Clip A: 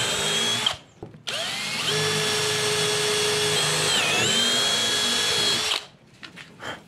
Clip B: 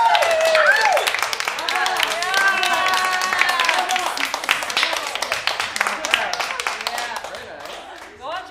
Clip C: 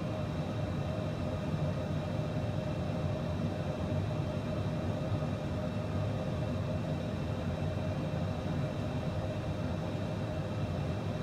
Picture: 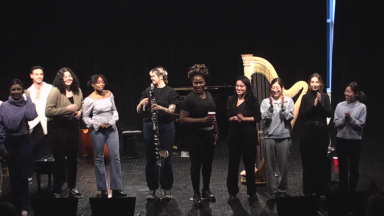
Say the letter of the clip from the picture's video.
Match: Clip B